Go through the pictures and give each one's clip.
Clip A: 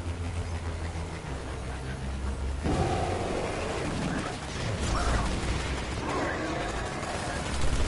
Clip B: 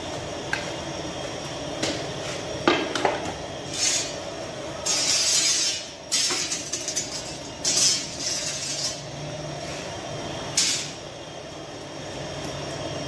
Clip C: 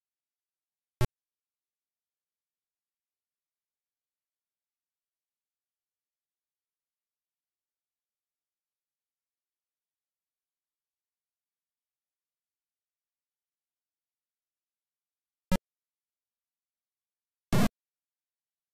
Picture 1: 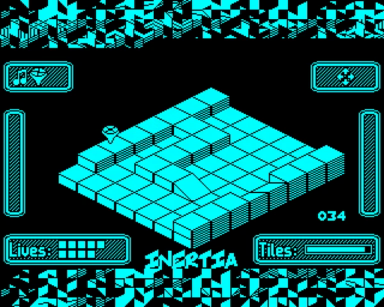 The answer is C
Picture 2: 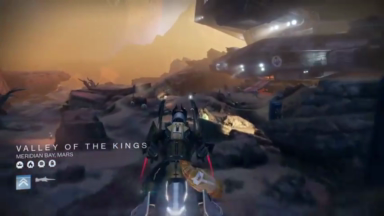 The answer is A